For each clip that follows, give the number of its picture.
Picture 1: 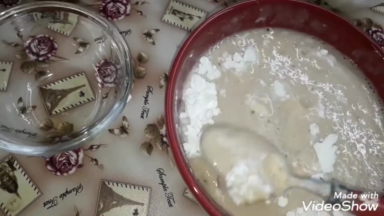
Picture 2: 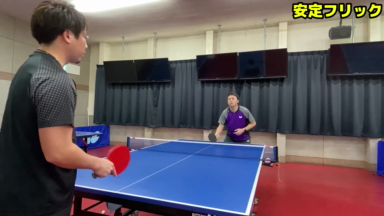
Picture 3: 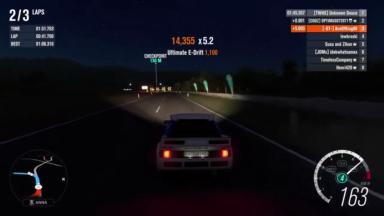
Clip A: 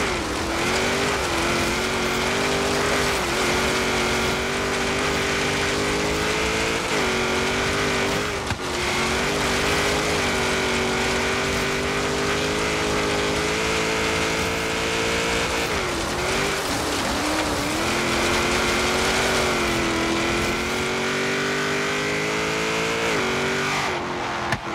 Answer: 3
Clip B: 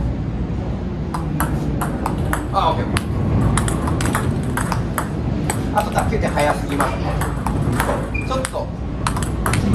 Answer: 2